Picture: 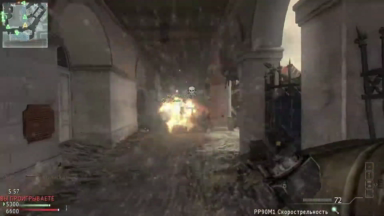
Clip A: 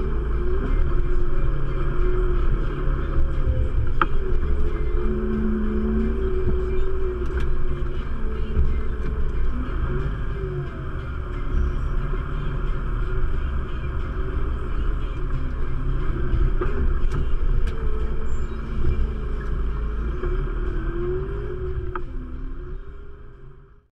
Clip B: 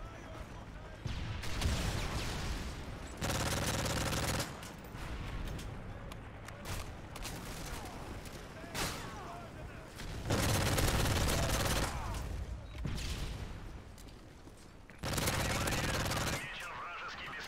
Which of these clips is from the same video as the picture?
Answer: B